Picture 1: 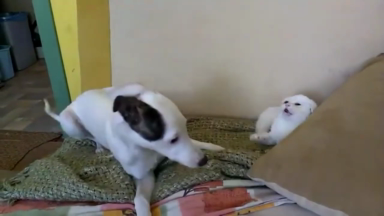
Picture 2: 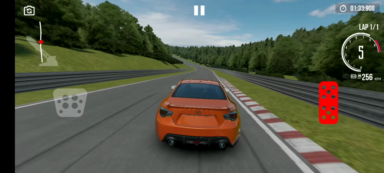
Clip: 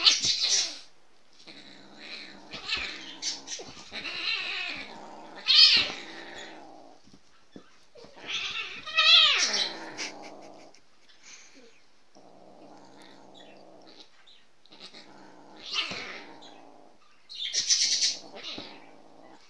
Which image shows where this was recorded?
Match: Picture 1